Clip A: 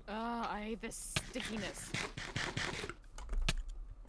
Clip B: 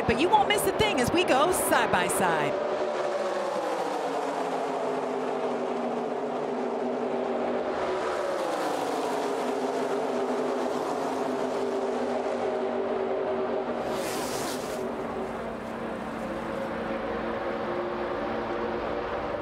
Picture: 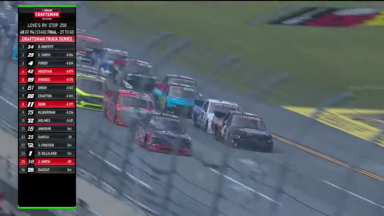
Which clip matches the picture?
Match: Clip B